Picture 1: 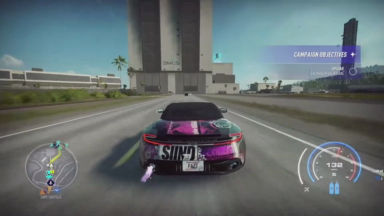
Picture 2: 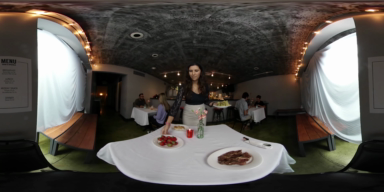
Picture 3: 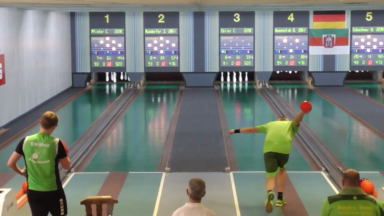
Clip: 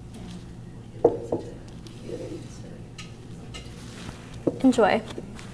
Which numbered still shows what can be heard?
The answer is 2